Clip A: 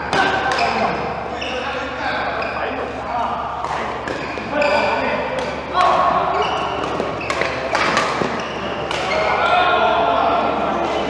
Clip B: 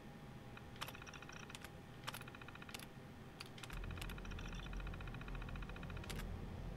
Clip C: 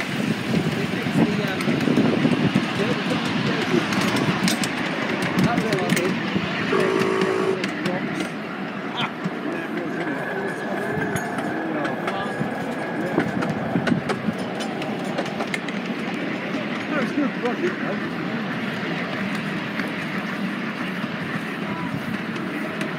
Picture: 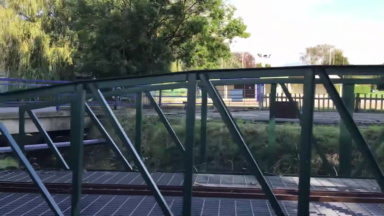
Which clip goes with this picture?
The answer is C